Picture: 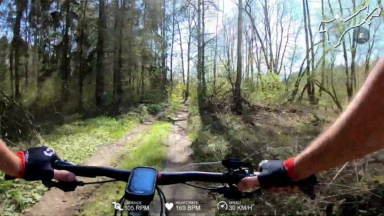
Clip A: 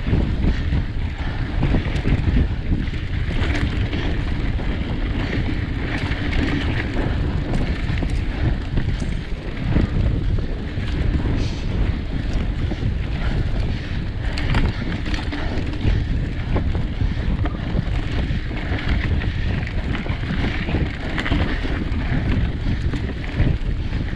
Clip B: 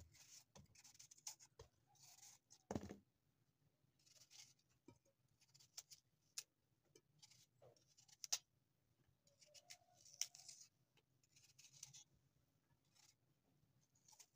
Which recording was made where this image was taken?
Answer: A